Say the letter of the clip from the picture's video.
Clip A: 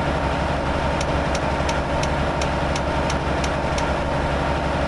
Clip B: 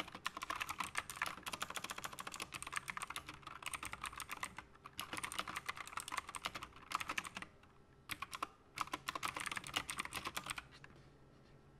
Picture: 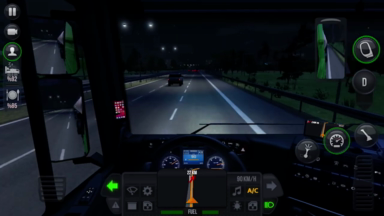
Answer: A